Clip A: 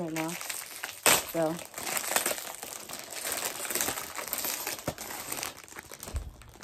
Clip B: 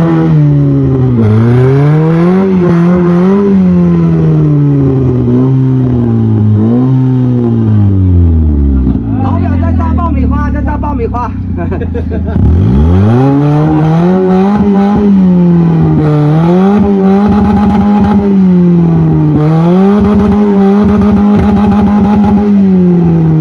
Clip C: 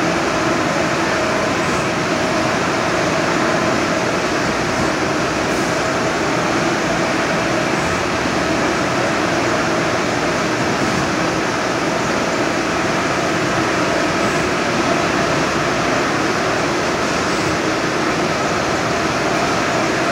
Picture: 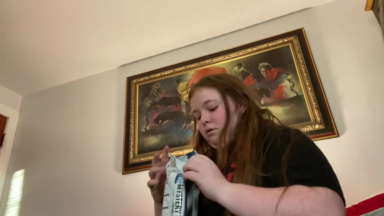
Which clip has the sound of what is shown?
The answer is A